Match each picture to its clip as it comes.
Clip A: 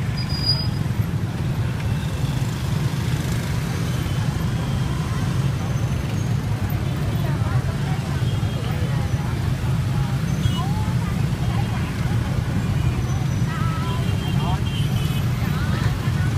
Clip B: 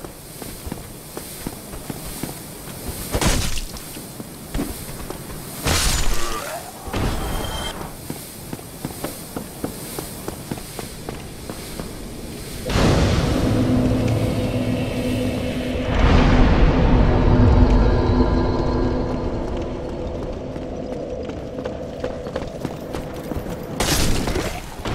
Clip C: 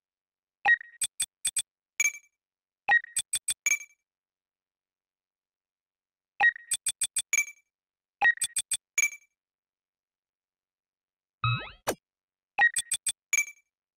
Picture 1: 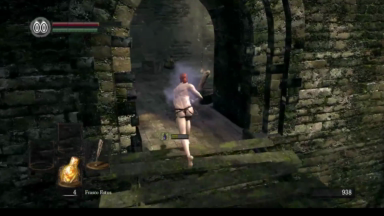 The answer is B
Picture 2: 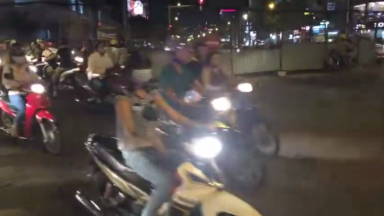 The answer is A